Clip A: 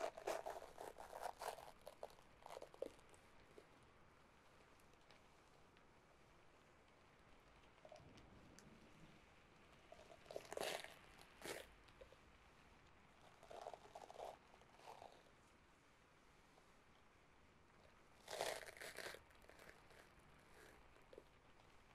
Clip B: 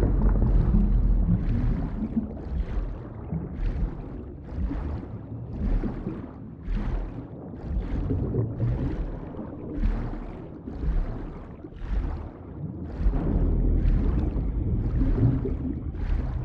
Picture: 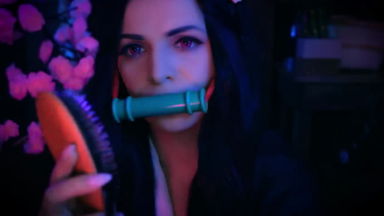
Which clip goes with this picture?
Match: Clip A